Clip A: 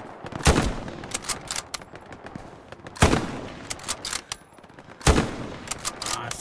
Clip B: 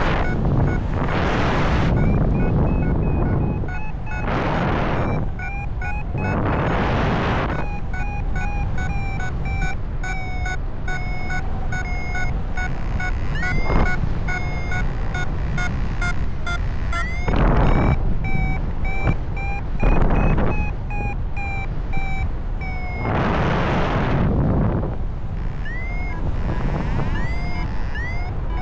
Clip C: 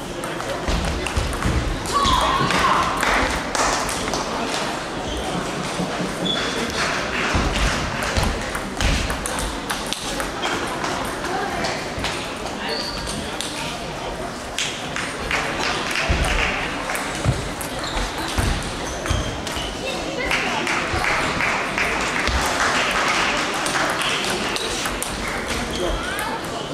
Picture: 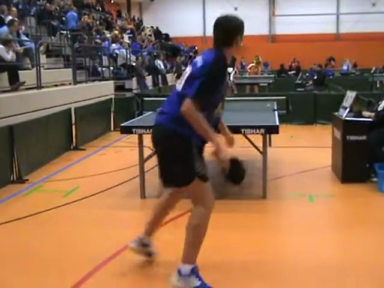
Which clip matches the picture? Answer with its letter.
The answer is C